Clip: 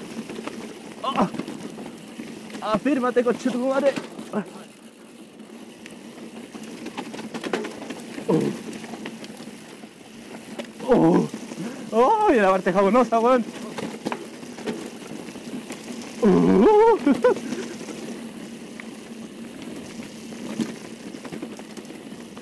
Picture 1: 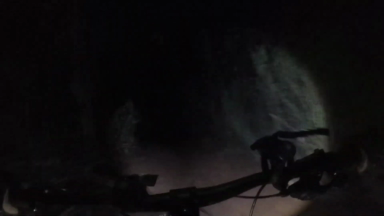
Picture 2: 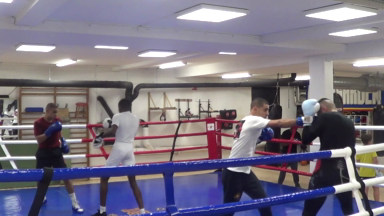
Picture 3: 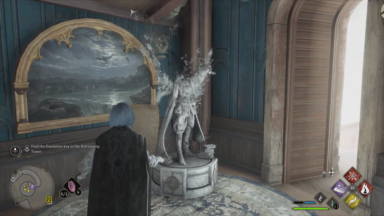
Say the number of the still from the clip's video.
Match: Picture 1